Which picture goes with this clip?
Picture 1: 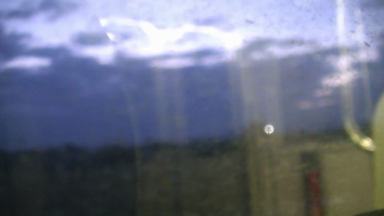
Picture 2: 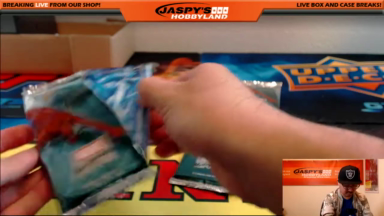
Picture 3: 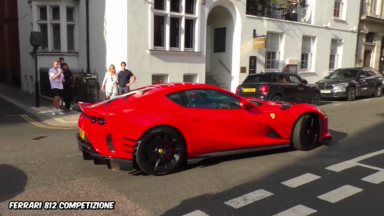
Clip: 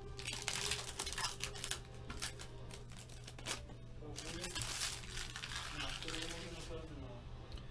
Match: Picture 2